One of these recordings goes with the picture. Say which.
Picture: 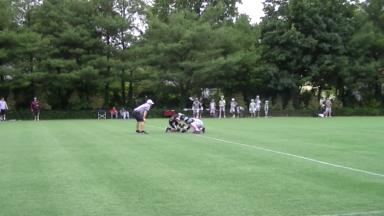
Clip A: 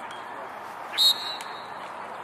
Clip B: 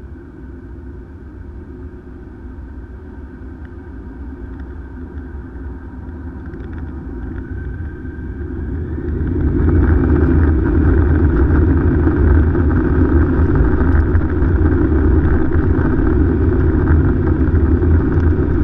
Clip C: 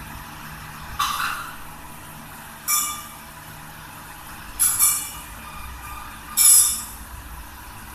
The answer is A